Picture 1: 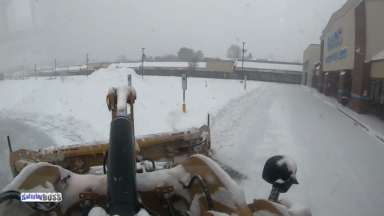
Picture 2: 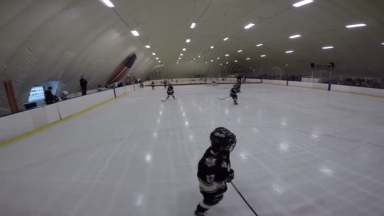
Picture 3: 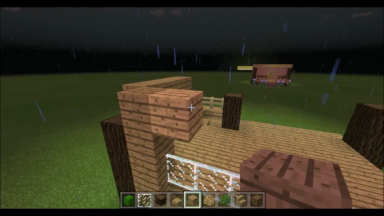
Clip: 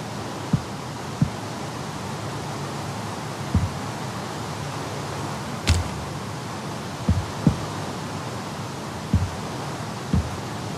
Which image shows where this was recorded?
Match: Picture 3